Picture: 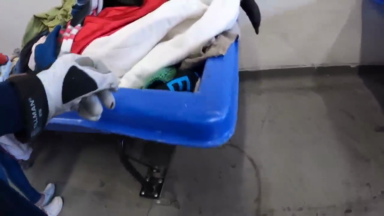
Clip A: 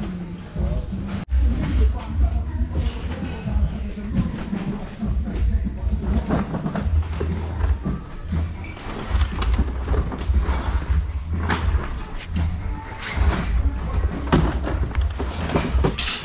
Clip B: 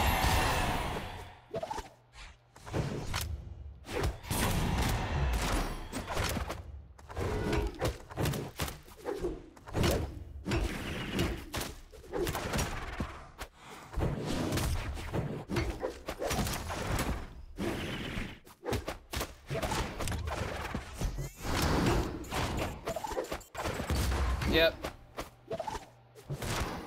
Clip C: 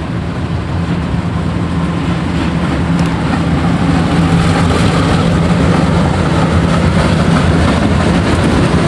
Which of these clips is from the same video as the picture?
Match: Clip A